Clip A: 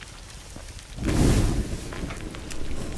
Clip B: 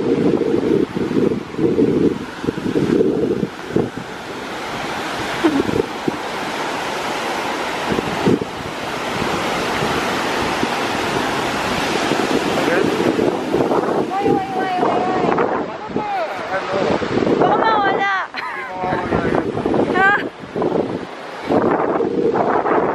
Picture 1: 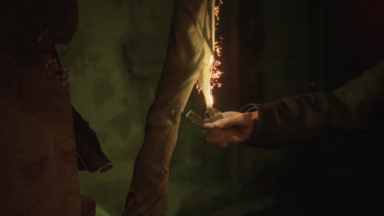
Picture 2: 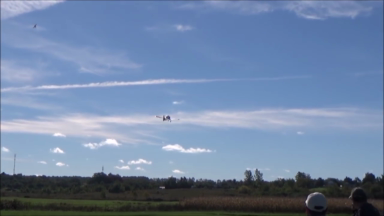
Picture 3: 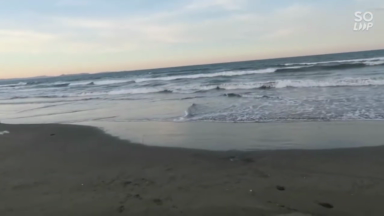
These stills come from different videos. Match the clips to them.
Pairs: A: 1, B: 3